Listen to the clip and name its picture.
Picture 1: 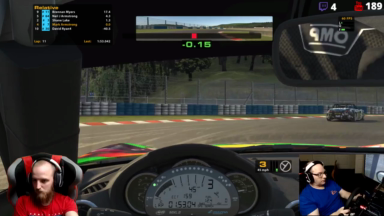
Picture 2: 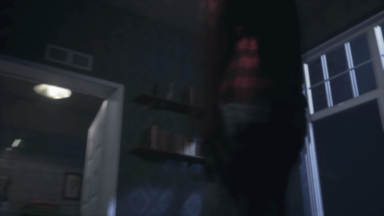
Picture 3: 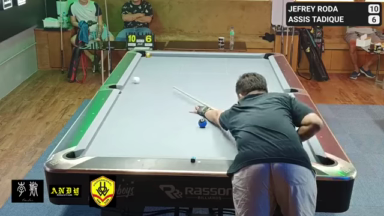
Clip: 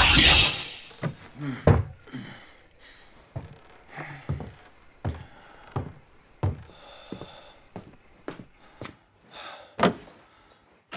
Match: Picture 2